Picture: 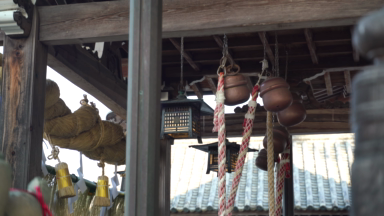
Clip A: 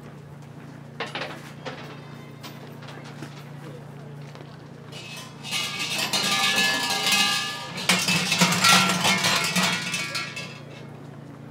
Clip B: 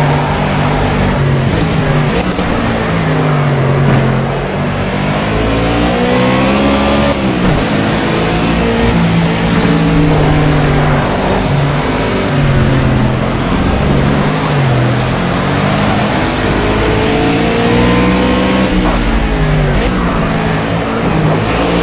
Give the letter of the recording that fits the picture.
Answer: A